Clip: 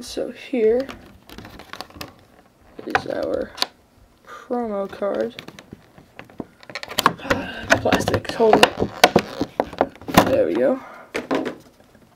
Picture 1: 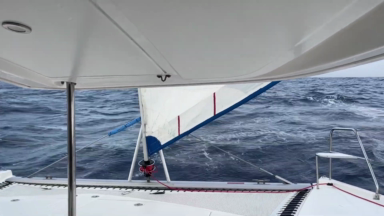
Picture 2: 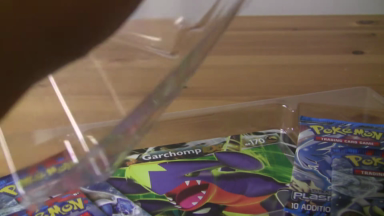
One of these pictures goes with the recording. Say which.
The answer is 2